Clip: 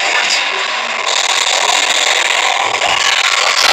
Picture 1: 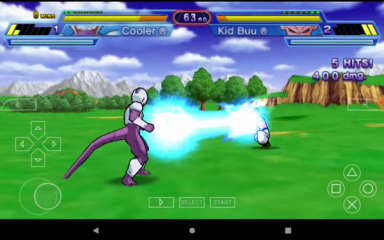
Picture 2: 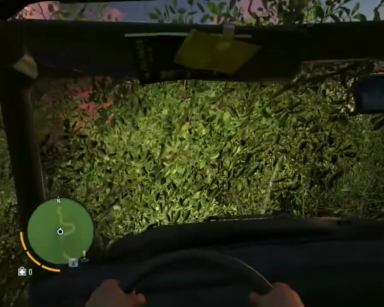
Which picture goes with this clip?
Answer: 1